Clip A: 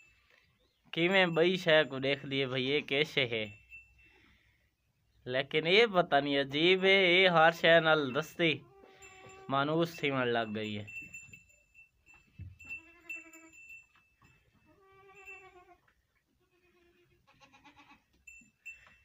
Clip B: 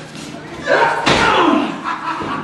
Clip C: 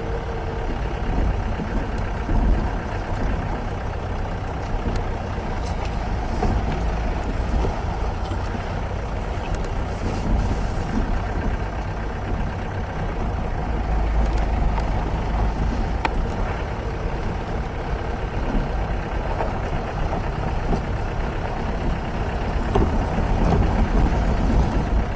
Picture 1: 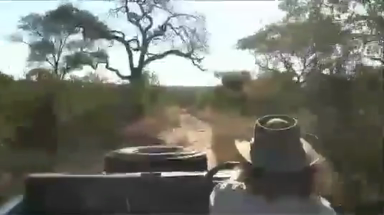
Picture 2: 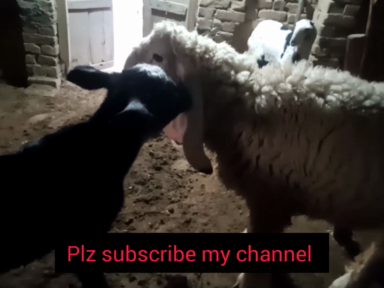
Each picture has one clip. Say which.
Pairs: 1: C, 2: A